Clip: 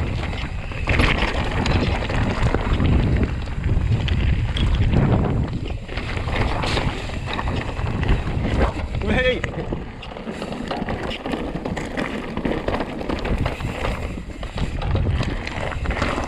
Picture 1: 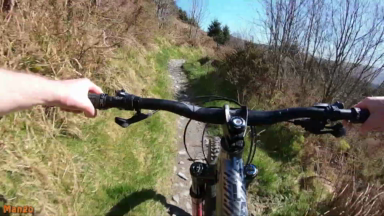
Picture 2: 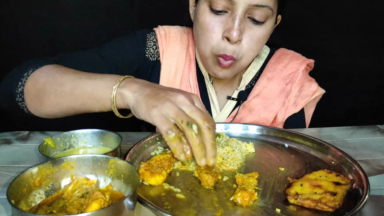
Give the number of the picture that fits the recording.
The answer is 1